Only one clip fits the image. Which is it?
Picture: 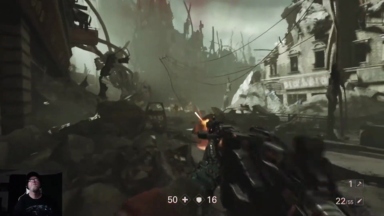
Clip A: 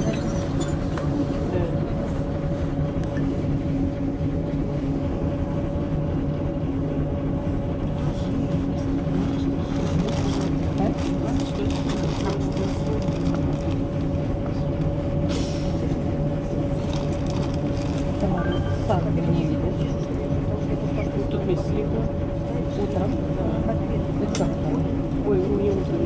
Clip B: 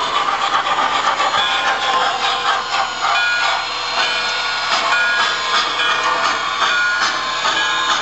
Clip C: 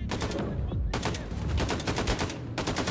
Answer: C